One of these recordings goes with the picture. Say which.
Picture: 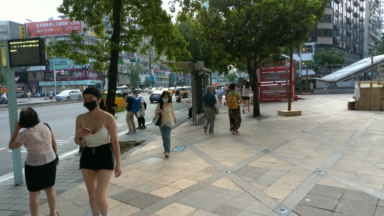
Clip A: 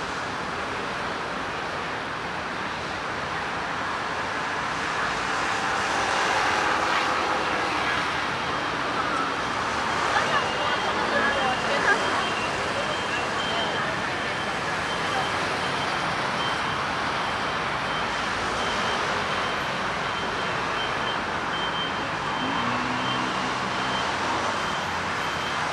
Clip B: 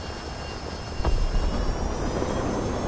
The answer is A